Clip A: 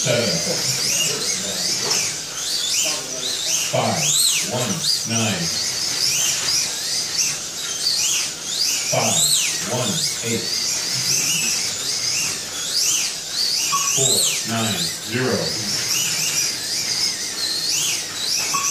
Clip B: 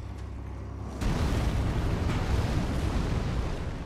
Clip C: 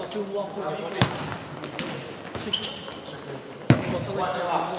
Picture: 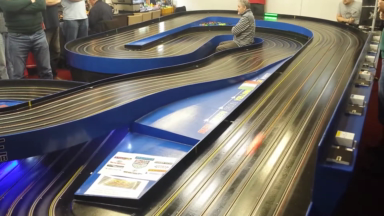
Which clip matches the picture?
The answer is A